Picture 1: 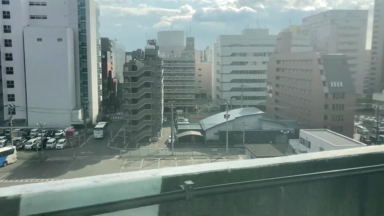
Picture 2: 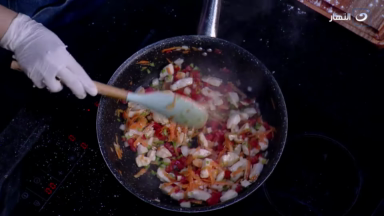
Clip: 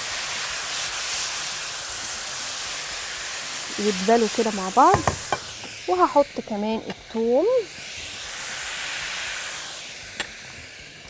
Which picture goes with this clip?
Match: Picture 2